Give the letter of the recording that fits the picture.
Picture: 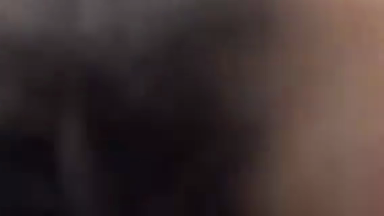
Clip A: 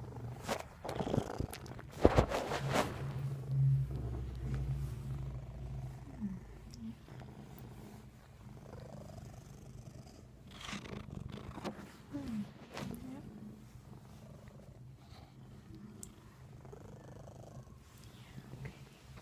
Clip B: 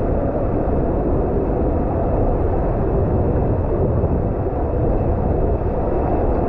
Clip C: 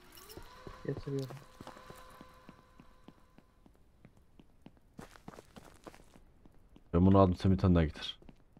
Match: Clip A